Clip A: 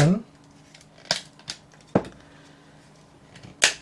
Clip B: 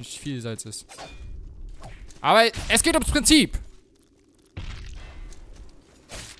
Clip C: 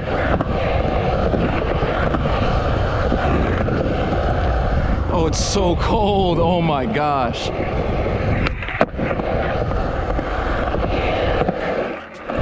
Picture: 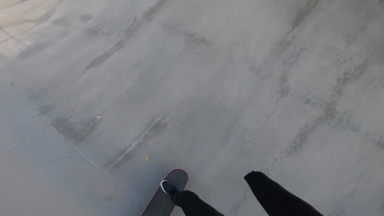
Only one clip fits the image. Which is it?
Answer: C